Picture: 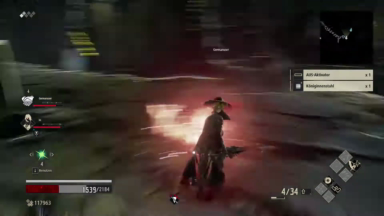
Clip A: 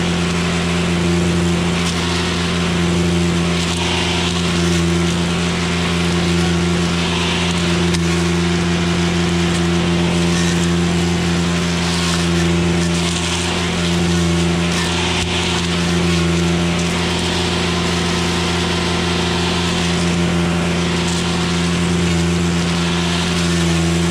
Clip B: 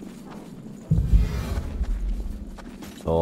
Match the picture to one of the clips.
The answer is B